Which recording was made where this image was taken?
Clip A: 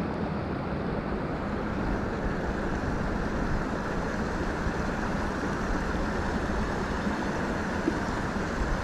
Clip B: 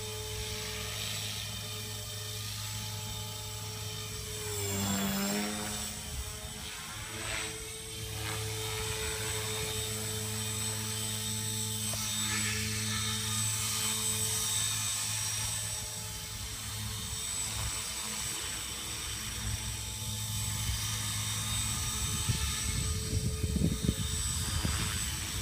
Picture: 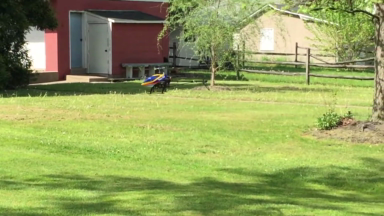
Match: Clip B